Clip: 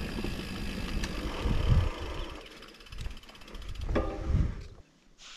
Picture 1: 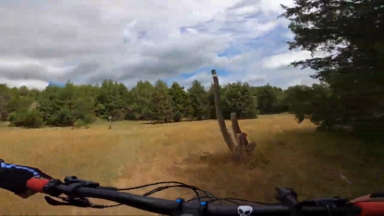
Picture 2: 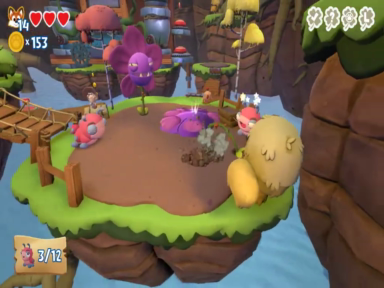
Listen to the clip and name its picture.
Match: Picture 1